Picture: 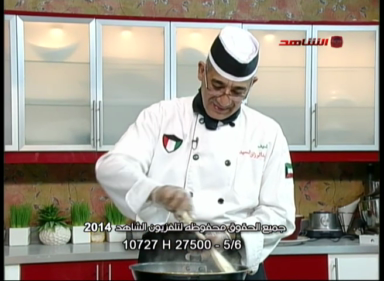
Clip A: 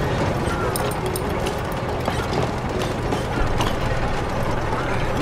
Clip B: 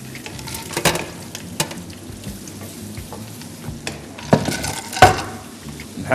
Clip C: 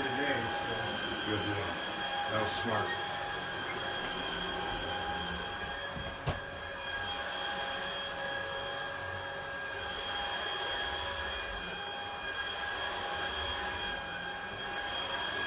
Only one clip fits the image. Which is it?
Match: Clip B